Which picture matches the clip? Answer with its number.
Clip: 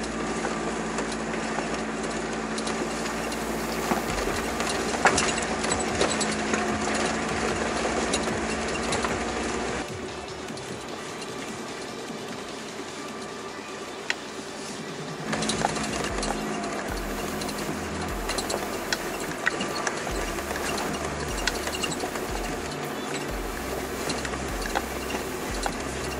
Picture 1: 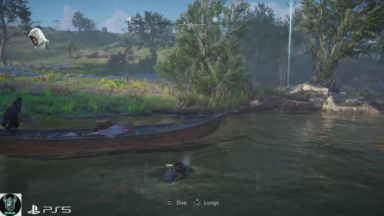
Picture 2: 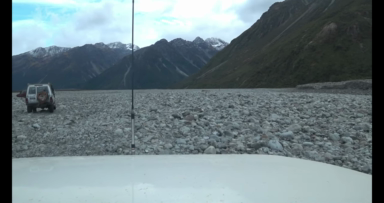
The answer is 2